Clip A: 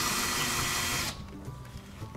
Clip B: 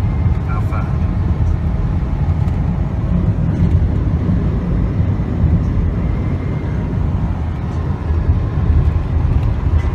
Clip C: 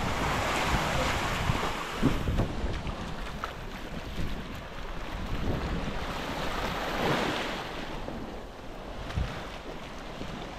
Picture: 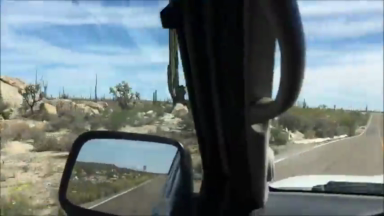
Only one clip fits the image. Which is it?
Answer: B